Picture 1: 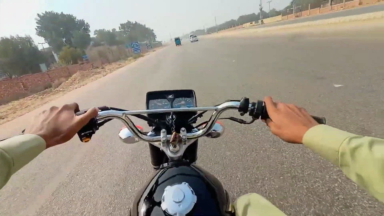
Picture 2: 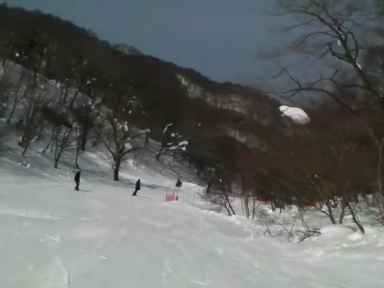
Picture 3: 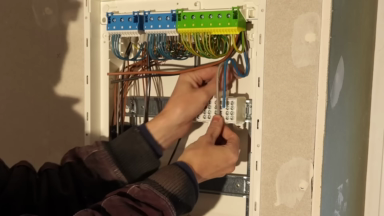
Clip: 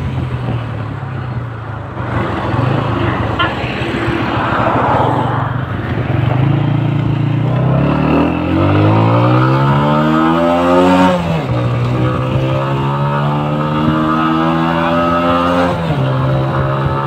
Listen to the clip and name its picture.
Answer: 1